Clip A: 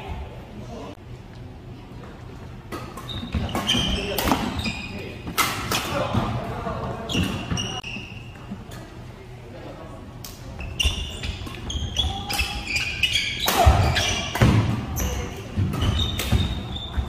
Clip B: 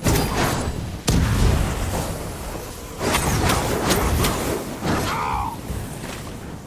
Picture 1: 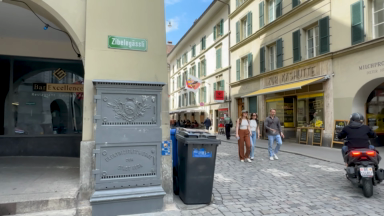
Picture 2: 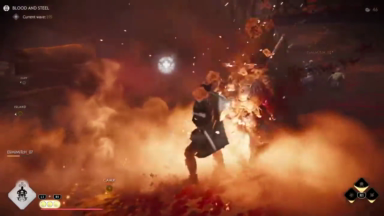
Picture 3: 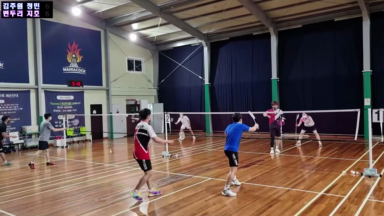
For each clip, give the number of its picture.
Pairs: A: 3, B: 2